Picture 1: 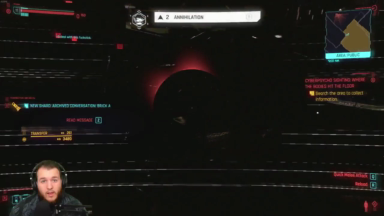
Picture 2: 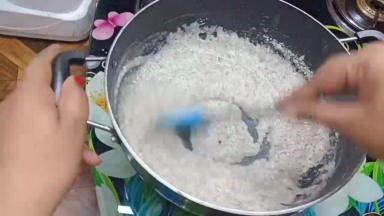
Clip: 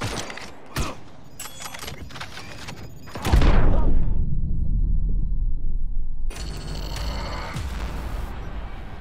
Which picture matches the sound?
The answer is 1